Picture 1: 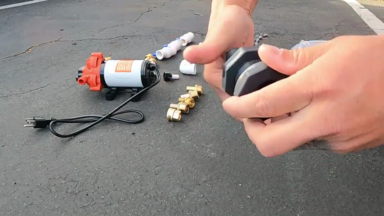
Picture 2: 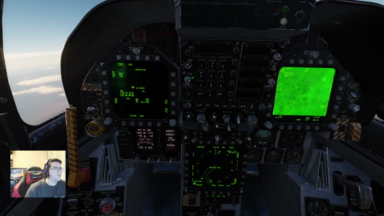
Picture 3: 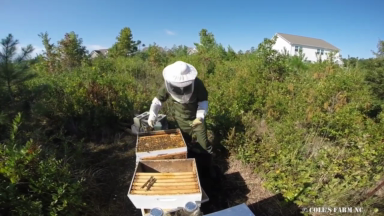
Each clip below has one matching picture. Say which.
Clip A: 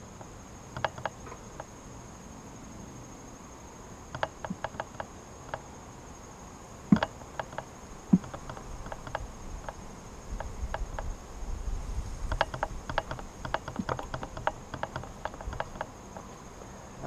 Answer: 3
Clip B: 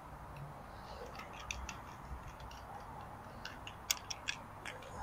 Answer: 1